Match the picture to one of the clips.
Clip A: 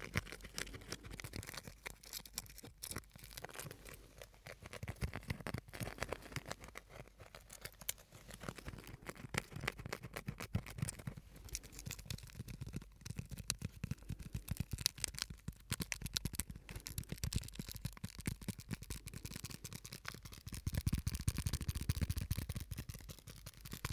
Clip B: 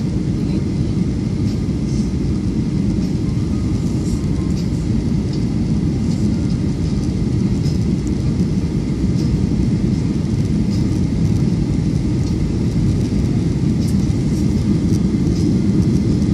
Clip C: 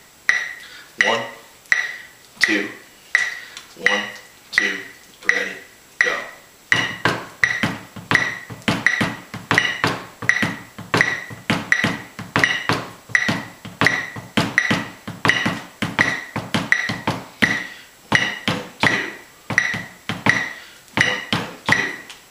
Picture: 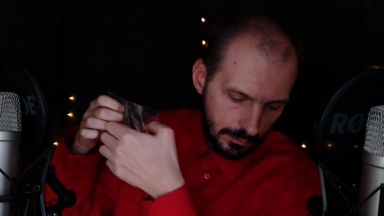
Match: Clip A